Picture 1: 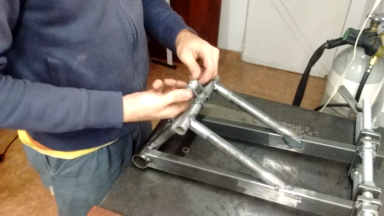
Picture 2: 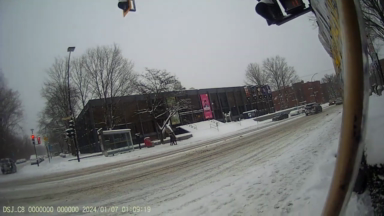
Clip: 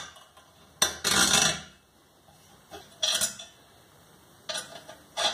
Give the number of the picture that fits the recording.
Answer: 1